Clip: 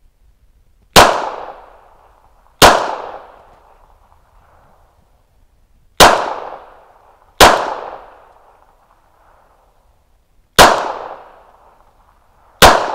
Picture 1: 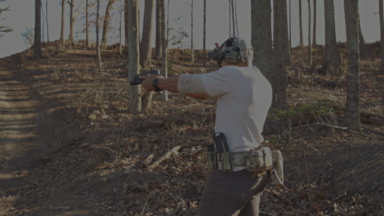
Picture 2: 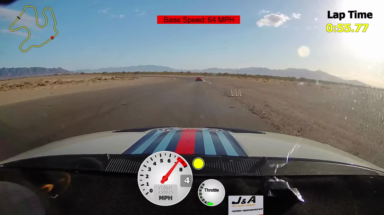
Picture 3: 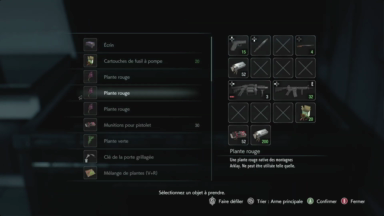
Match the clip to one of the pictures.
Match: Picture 1